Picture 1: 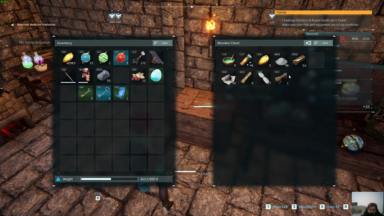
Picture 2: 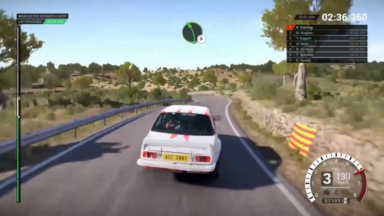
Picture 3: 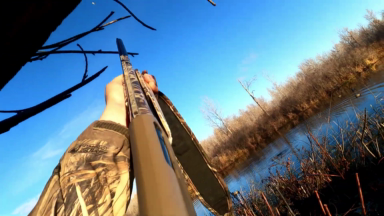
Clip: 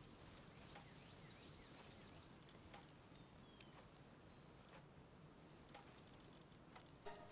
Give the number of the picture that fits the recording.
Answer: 1